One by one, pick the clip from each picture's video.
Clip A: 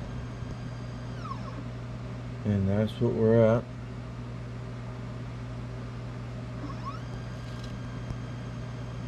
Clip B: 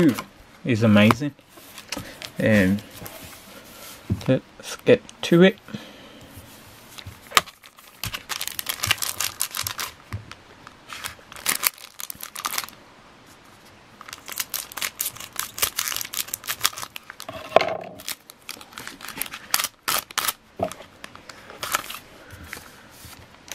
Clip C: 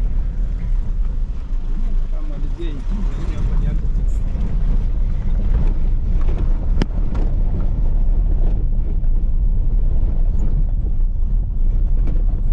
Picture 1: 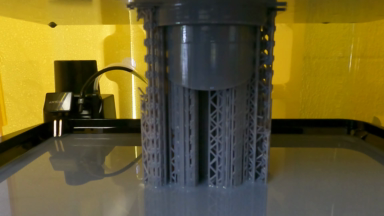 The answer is A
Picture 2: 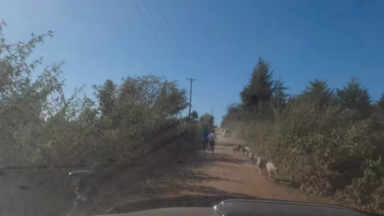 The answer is C